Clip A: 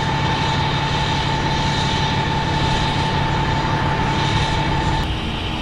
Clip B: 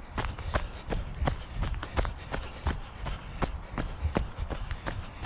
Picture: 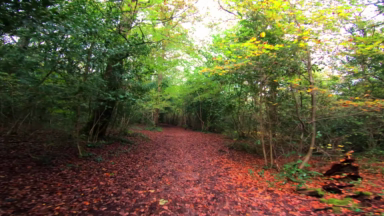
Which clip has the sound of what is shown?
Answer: B